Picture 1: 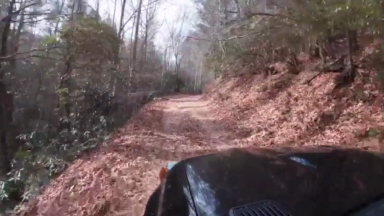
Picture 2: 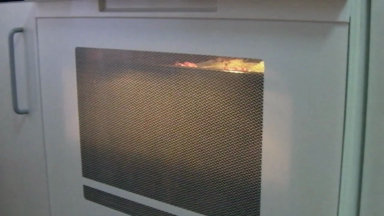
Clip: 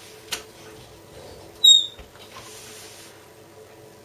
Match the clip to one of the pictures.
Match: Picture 2